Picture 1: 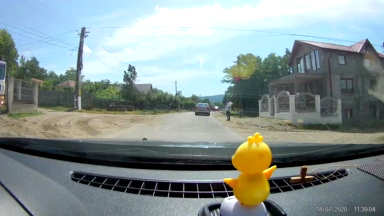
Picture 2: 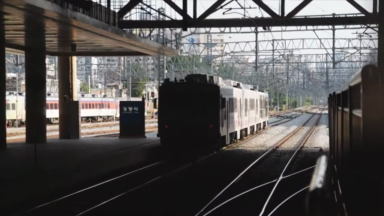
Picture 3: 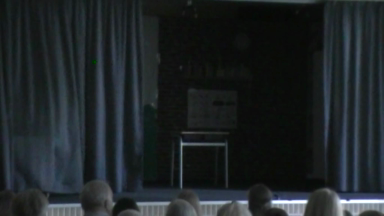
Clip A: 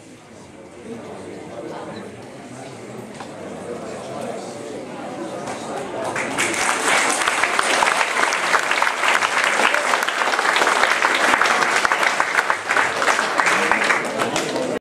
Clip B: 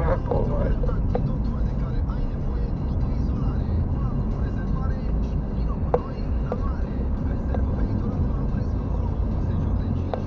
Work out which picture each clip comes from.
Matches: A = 3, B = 1